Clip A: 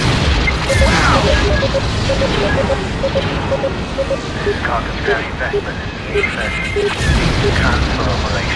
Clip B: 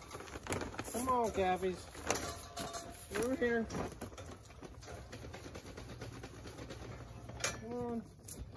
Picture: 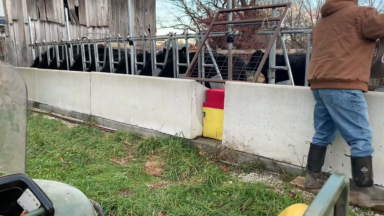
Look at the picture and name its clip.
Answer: B